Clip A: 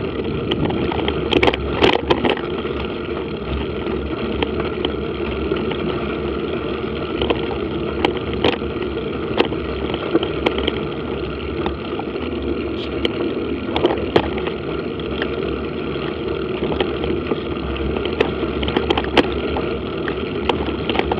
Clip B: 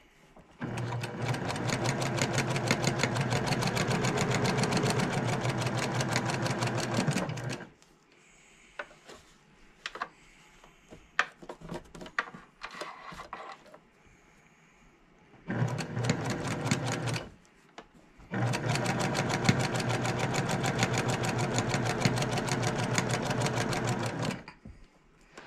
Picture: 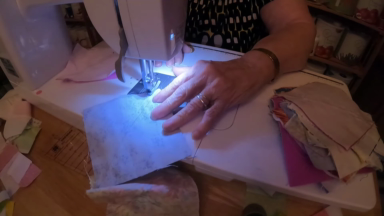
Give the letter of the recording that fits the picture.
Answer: B